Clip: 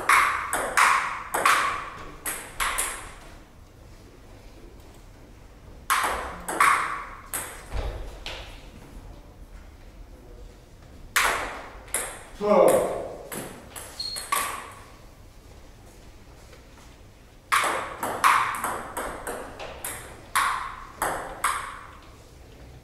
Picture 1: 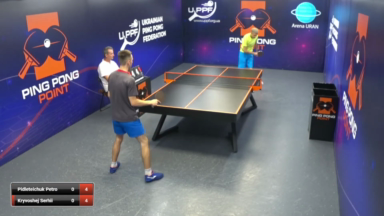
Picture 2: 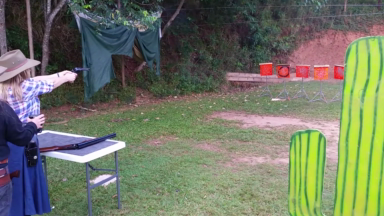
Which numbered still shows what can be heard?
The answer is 1